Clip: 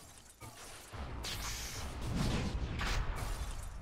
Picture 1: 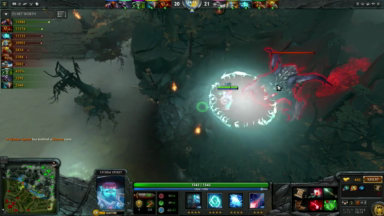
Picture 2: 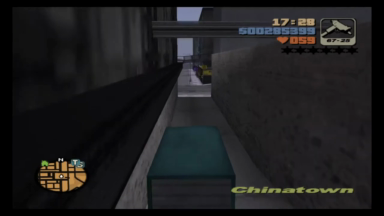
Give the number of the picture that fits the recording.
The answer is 1